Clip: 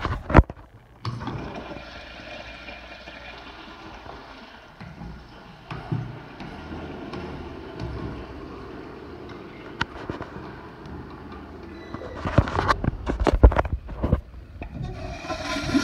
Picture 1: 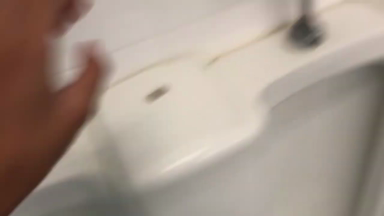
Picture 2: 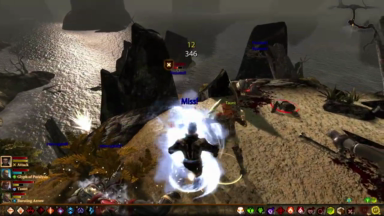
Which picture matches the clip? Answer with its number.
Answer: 1